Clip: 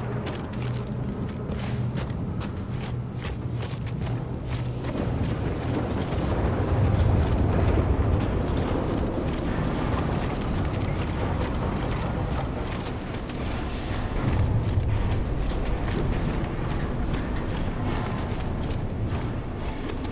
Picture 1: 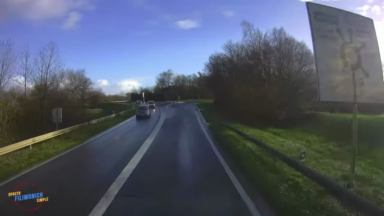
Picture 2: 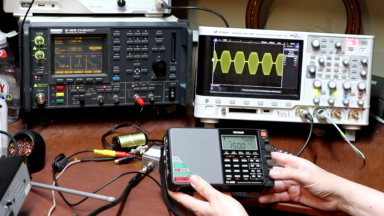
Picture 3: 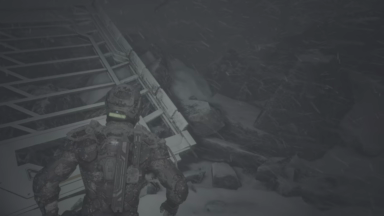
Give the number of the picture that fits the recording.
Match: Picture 3